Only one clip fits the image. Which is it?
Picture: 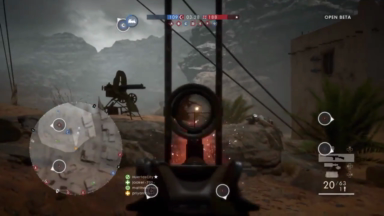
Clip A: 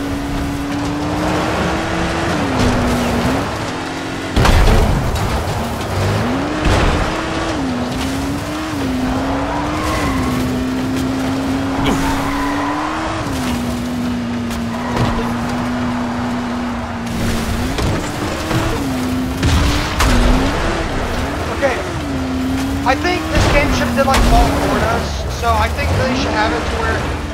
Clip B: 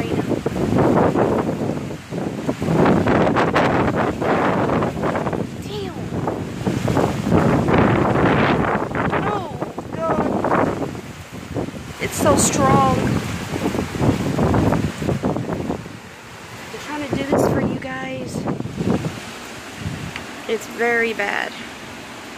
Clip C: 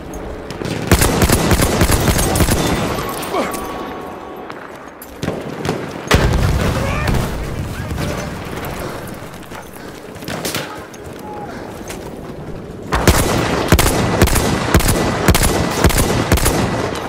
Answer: C